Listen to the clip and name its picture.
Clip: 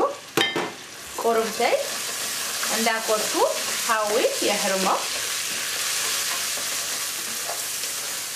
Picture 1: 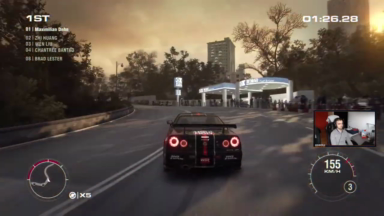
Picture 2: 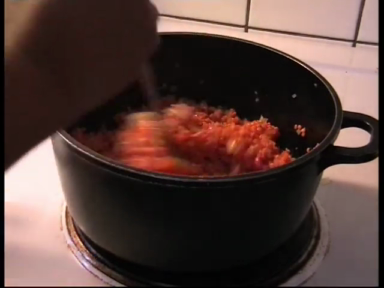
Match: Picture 2